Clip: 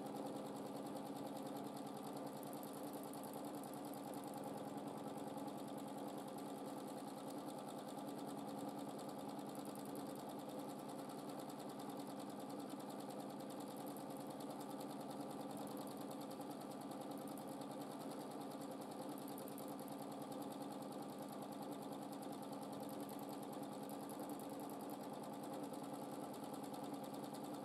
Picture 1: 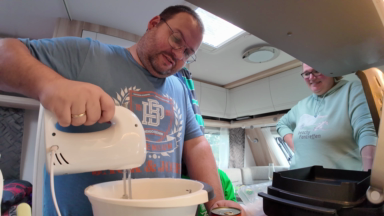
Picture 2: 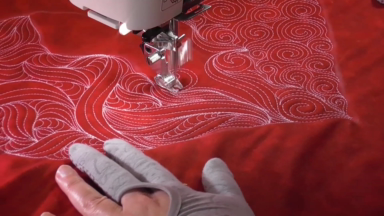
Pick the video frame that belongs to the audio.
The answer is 2